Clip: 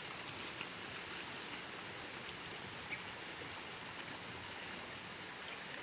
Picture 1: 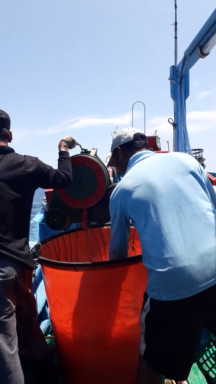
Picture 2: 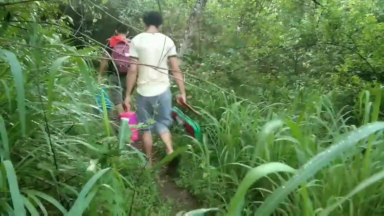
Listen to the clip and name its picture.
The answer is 2